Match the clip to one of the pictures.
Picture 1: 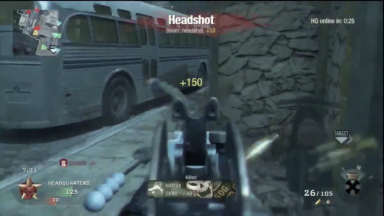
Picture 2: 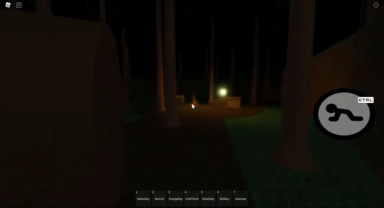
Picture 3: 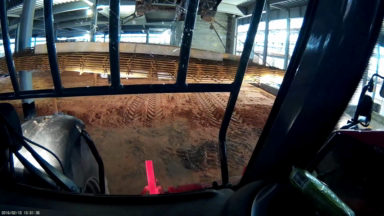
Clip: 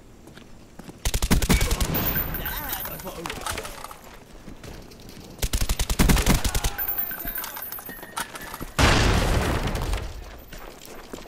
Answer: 1